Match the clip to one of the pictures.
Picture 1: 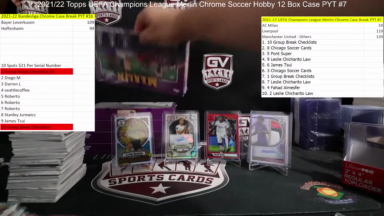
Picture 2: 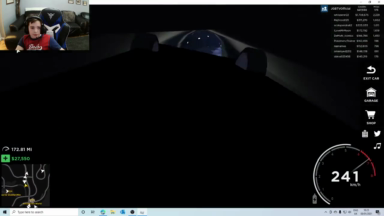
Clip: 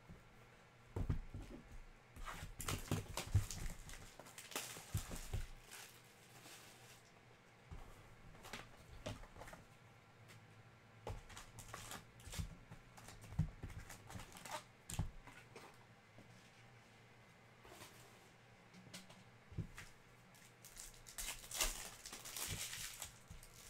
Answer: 1